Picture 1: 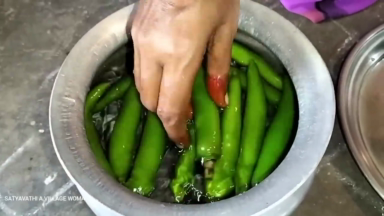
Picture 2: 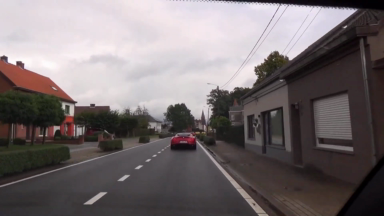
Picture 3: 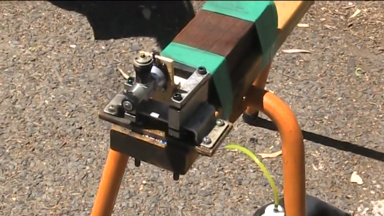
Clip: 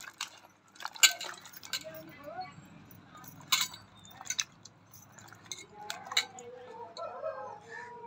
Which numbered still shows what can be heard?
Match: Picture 1